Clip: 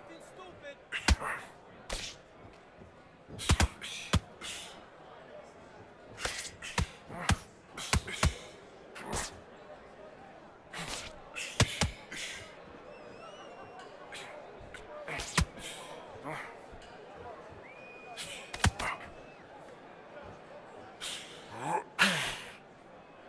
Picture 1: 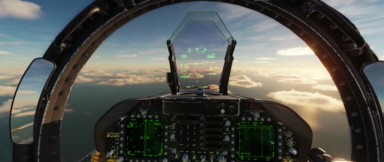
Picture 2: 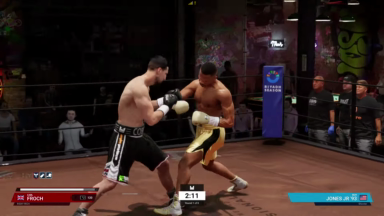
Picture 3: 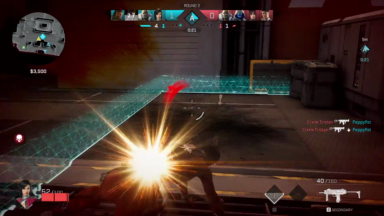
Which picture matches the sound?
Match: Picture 2